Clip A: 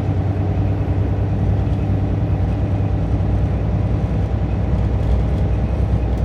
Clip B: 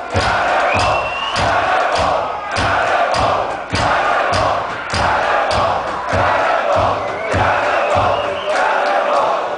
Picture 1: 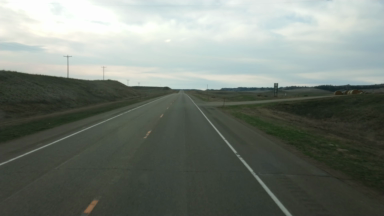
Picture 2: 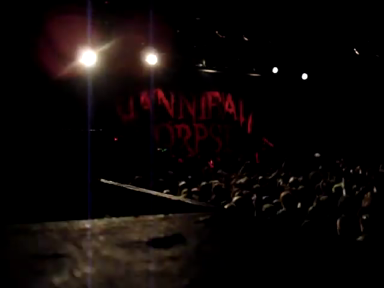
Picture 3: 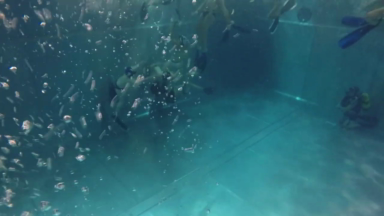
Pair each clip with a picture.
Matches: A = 1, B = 2